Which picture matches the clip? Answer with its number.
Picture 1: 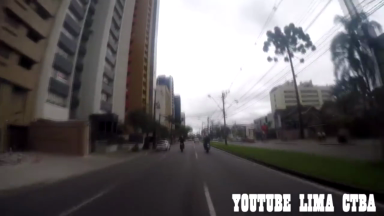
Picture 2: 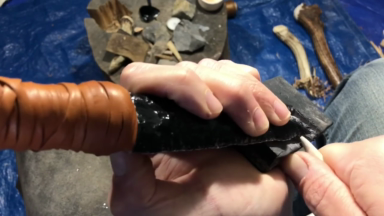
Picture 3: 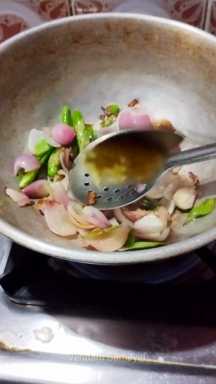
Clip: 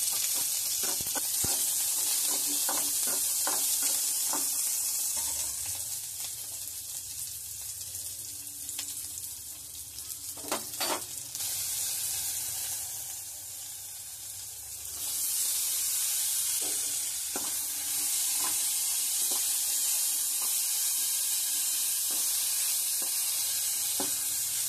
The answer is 3